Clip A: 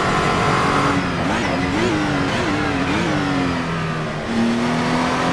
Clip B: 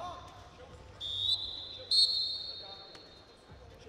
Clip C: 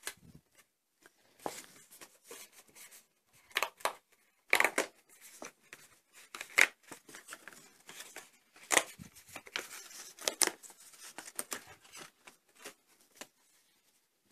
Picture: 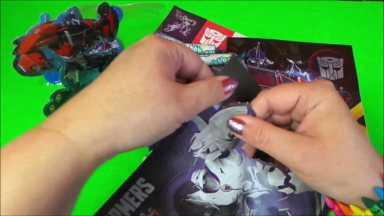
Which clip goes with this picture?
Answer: C